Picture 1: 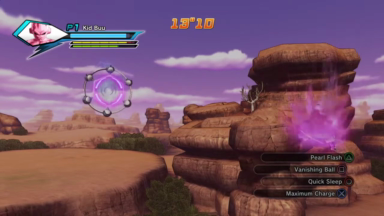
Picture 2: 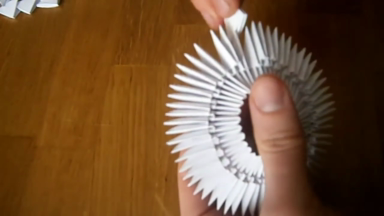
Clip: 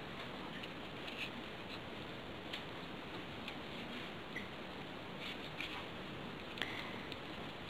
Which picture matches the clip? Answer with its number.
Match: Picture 2